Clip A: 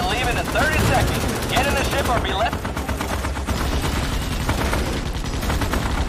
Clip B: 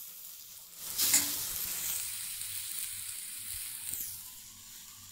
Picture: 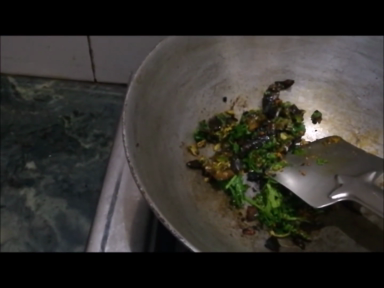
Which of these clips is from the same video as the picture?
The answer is B